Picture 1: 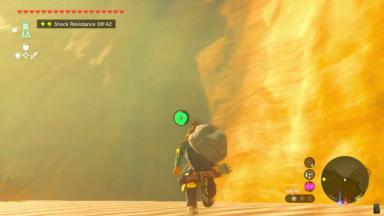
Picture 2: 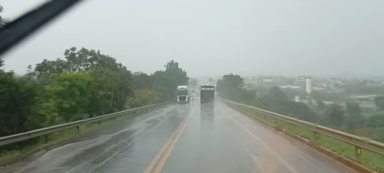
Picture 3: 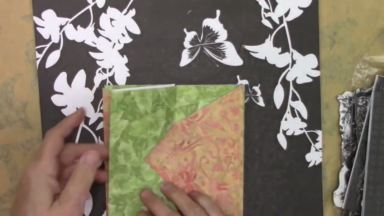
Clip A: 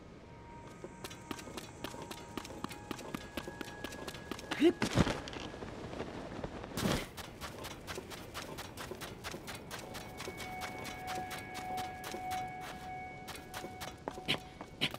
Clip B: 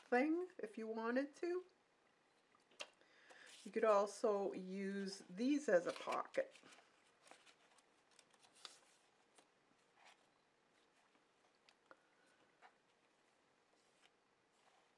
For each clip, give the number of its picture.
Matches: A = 1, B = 3